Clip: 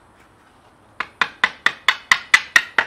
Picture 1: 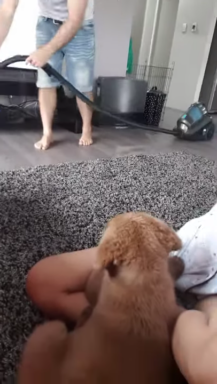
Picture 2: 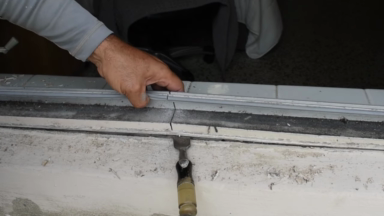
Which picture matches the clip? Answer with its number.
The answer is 2